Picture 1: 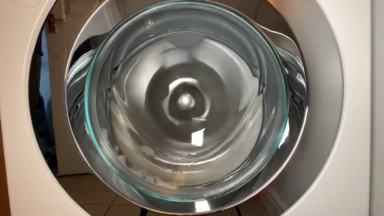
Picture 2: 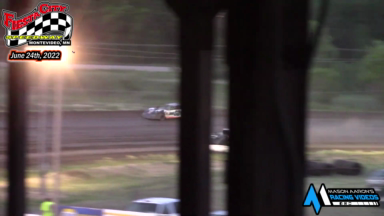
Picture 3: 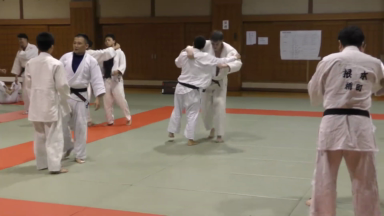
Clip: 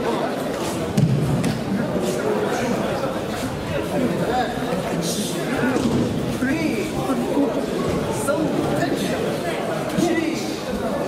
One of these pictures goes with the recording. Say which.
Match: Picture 3